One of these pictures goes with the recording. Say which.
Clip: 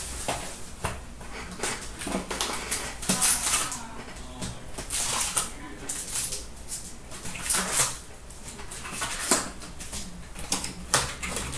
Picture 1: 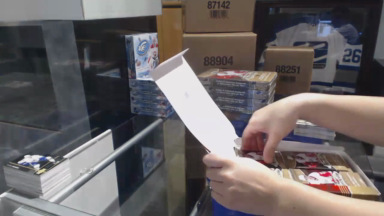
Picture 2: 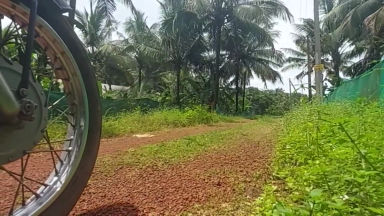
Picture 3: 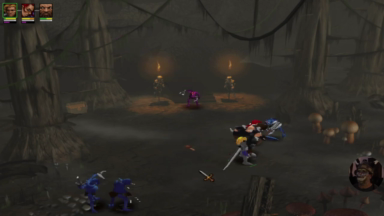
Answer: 1